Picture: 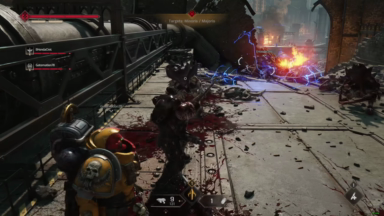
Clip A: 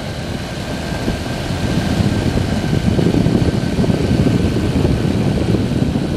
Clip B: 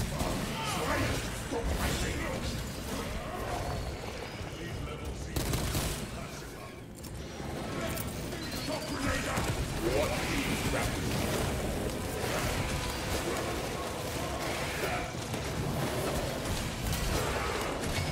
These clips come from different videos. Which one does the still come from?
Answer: B